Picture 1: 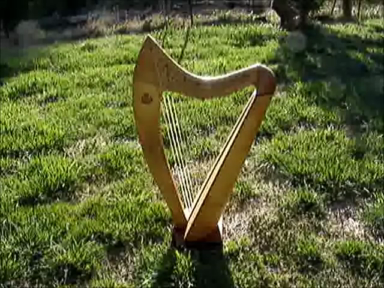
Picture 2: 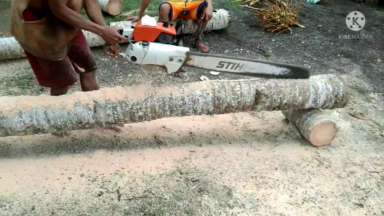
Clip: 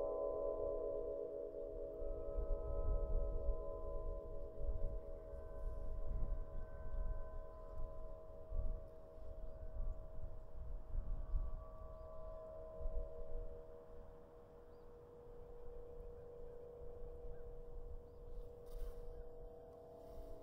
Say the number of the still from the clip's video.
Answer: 1